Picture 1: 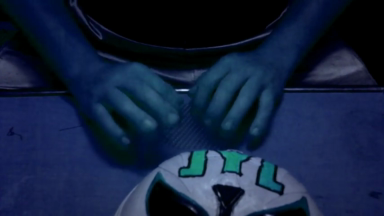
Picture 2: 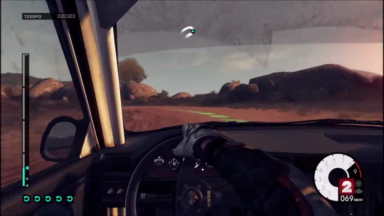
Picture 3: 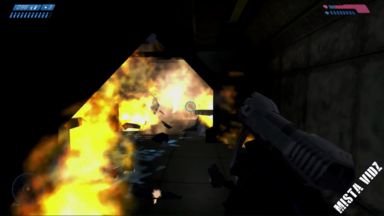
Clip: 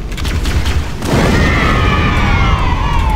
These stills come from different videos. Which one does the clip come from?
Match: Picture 3